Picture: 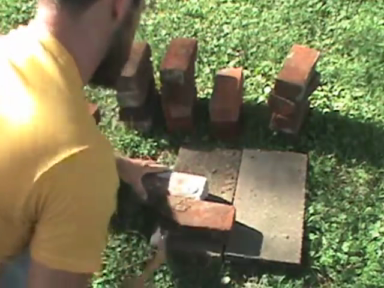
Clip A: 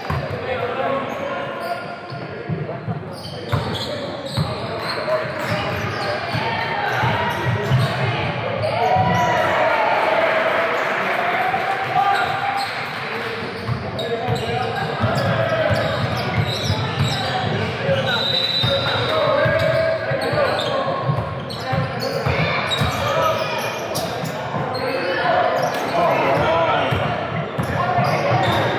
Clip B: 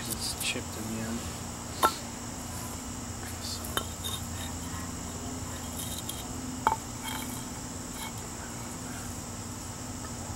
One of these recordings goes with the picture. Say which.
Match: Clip B